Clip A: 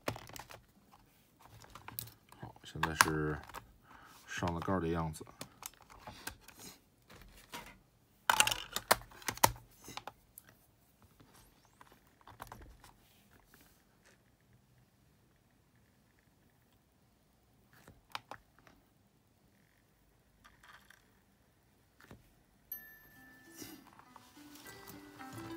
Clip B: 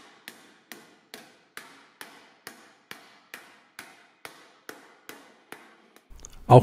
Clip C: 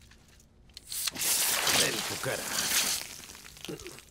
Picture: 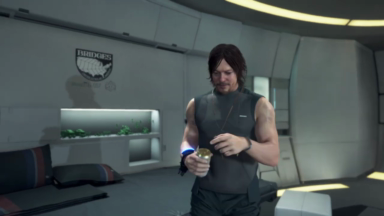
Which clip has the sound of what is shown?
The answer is C